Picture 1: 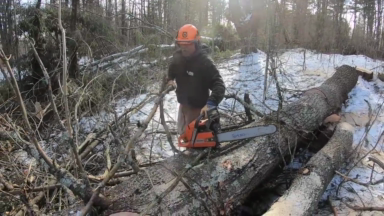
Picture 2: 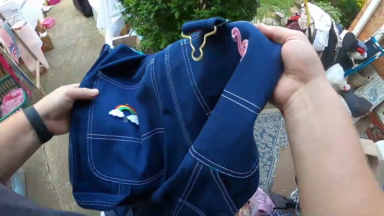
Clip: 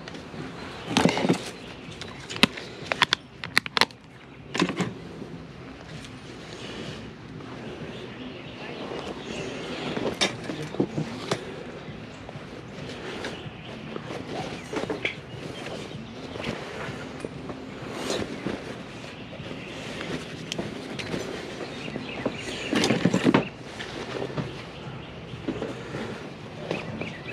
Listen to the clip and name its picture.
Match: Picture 2